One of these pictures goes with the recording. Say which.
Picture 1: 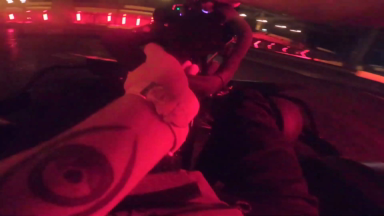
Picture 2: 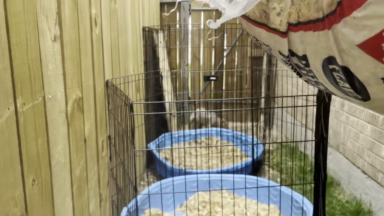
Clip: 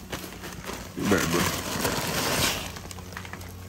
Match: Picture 2